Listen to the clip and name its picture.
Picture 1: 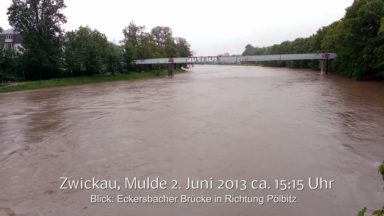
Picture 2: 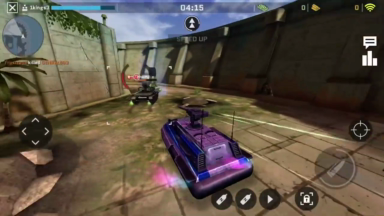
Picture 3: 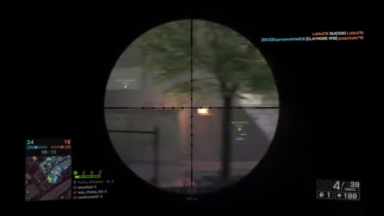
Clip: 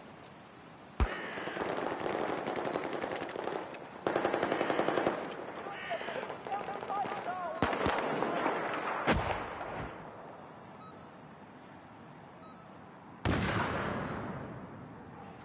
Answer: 3